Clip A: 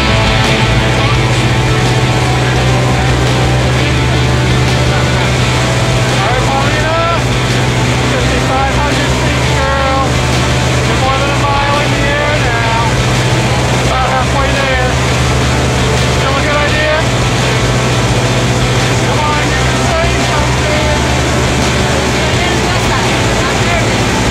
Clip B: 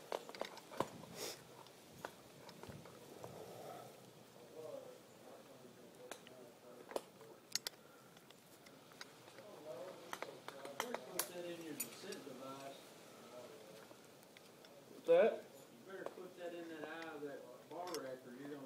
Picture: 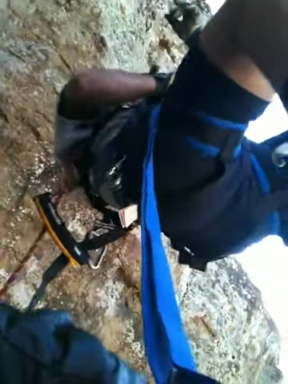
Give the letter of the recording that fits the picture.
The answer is B